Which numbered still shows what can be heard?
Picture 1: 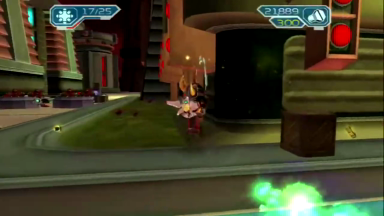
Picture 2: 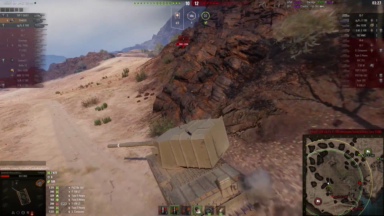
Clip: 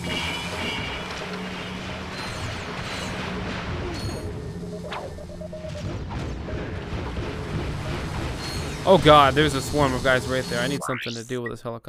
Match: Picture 1